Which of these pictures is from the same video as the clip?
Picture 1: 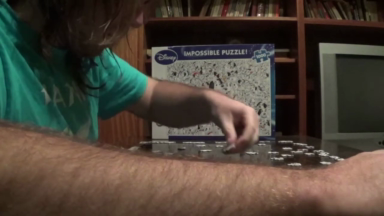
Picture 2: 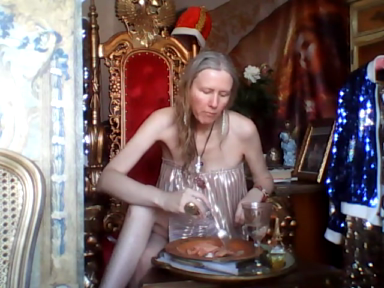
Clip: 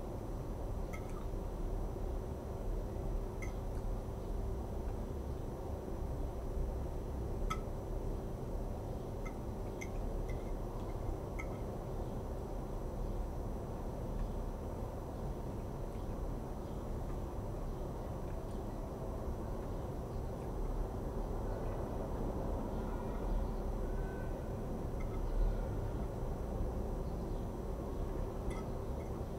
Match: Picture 2